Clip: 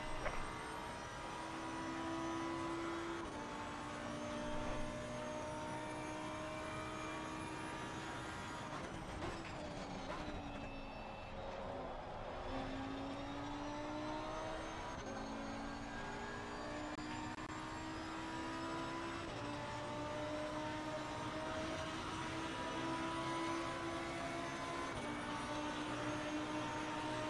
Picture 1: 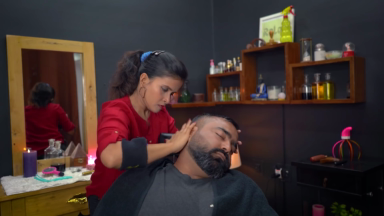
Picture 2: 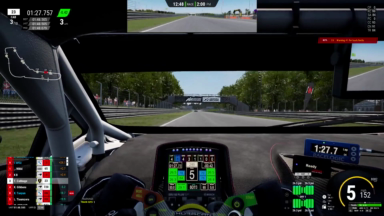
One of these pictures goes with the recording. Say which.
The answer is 2